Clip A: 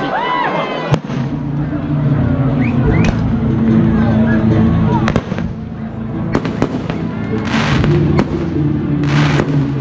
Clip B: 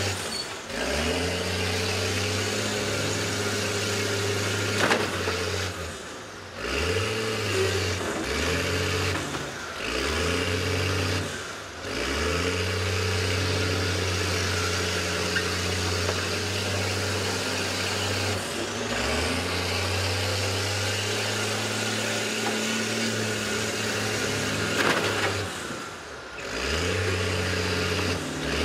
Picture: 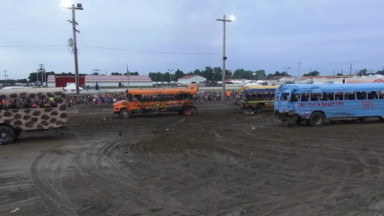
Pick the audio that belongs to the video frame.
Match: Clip B